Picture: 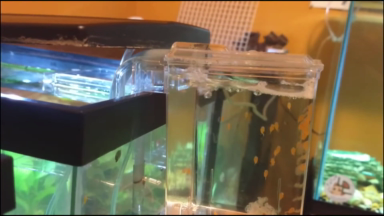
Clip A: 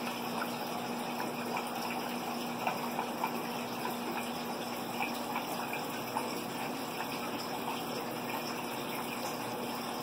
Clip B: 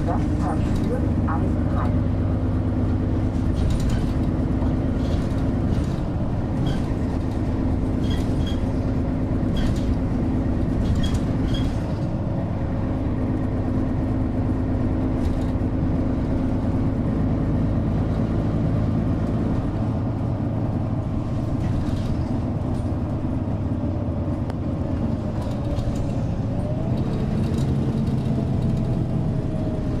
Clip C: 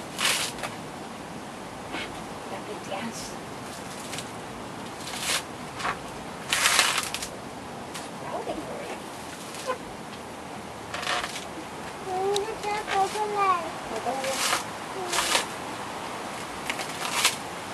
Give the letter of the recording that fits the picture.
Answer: A